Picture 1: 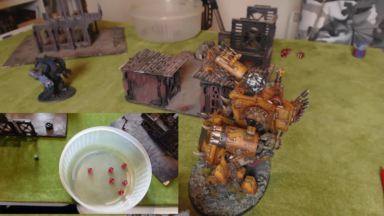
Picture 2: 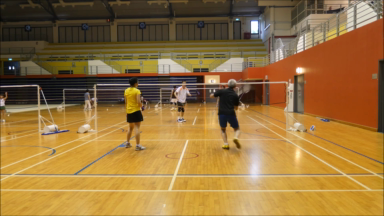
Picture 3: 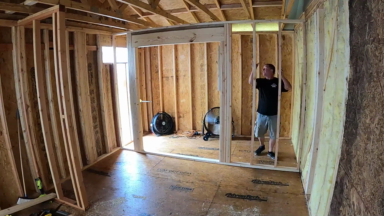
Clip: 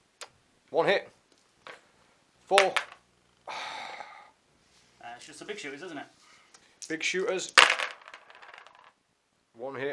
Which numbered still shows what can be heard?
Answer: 1